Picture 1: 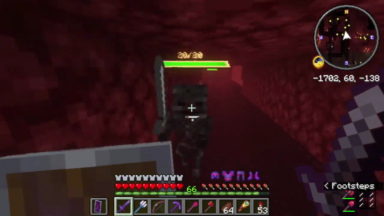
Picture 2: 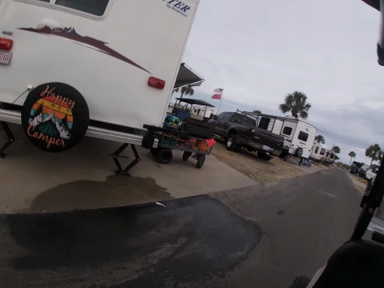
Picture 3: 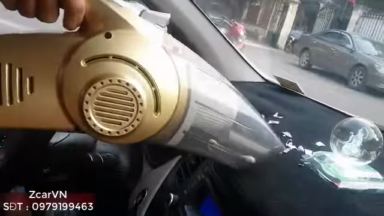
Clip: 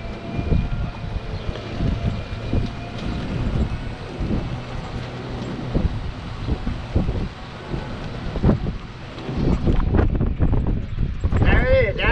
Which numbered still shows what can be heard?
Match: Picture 2